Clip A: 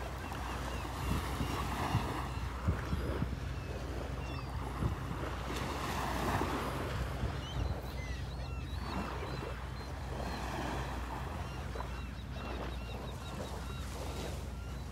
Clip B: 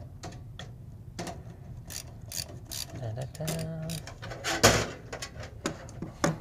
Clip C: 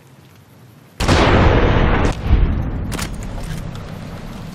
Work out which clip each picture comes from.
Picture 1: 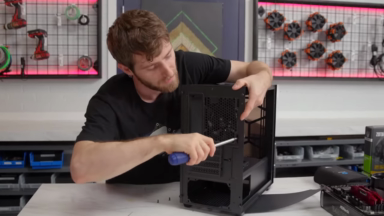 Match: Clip B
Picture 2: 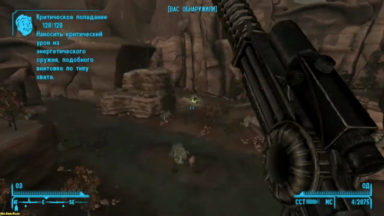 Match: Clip C